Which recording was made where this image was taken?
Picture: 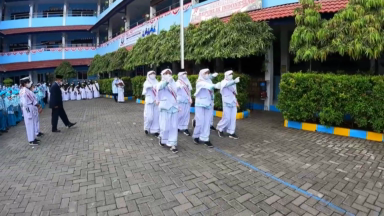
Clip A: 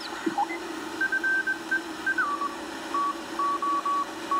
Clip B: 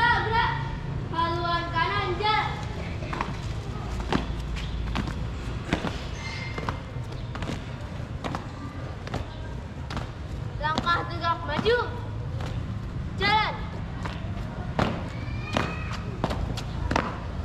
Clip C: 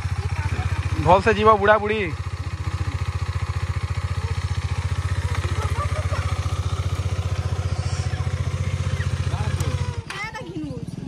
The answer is B